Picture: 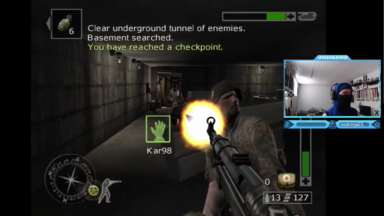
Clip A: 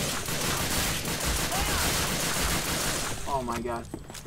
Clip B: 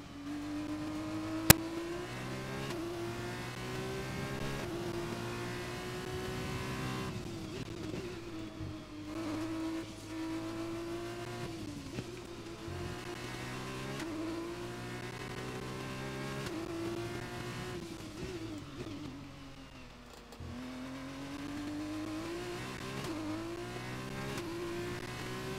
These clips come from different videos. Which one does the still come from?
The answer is A